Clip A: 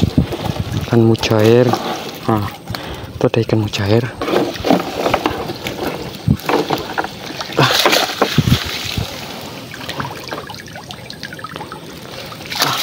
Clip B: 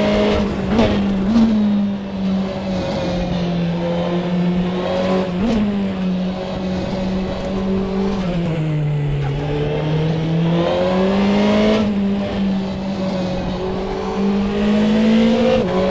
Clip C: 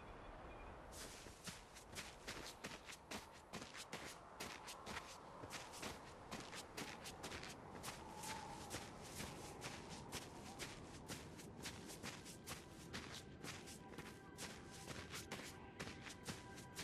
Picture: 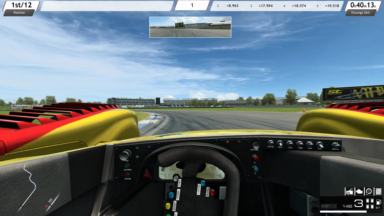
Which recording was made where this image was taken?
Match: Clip B